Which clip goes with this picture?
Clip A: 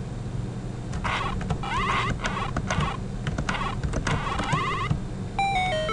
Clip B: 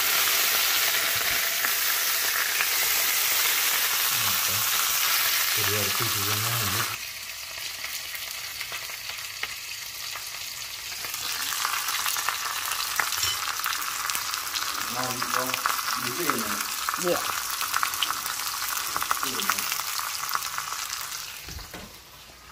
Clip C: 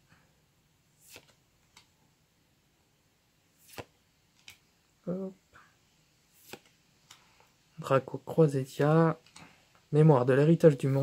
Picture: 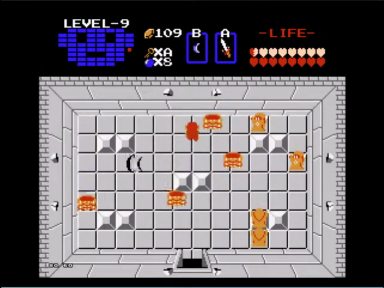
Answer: A